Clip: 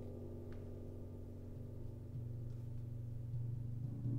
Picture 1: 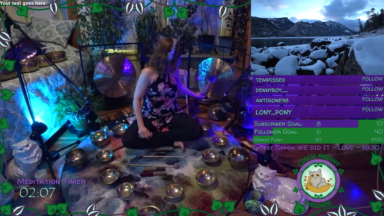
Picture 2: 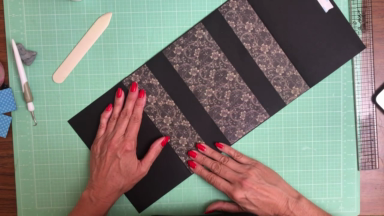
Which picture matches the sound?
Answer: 1